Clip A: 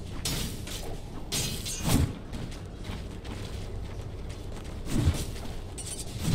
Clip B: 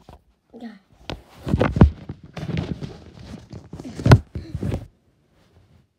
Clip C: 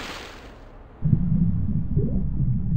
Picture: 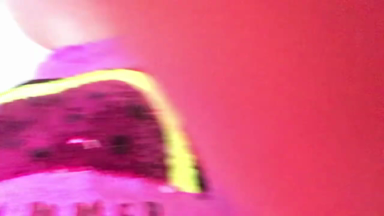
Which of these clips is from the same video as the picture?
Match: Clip B